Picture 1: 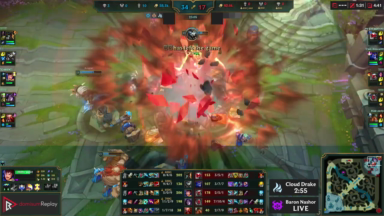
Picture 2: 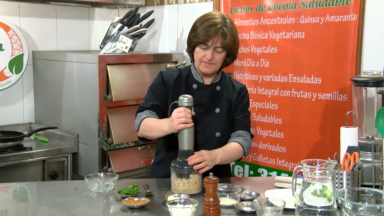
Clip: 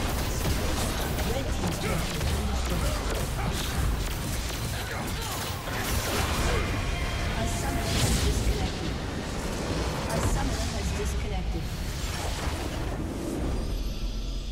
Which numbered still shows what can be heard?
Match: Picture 1